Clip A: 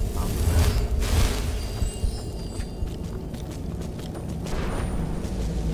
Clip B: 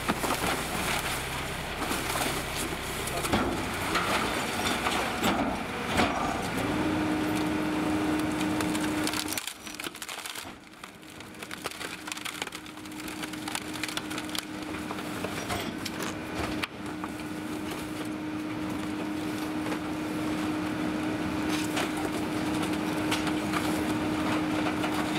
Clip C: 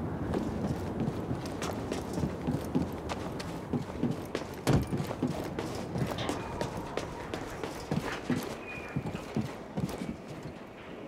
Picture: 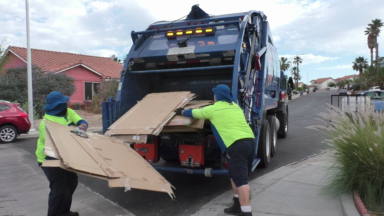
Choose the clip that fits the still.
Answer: B